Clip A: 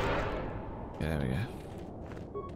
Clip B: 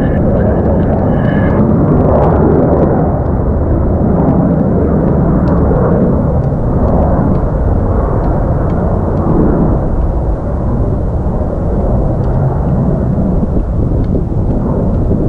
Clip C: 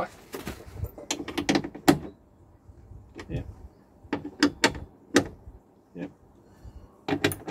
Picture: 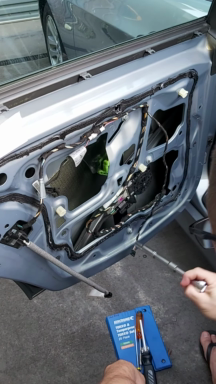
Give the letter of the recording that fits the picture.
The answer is C